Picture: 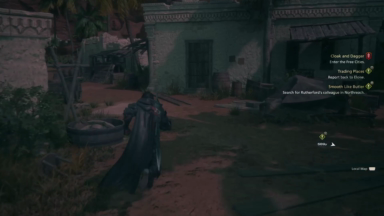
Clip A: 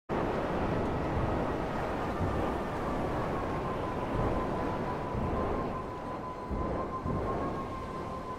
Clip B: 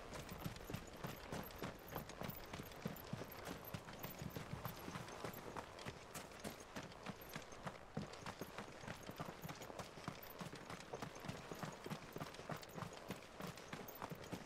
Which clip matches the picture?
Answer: B